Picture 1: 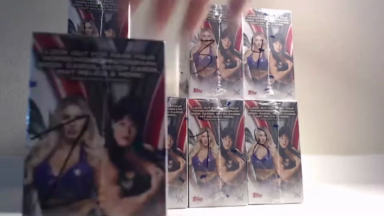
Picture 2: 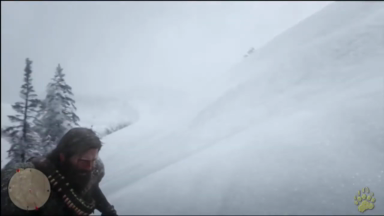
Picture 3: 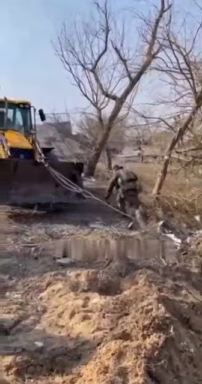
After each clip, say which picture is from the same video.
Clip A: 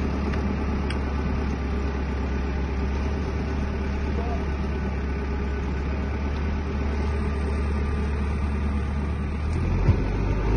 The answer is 3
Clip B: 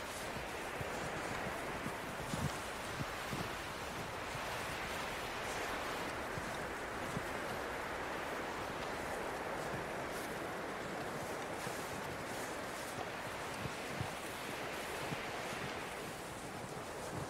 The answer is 2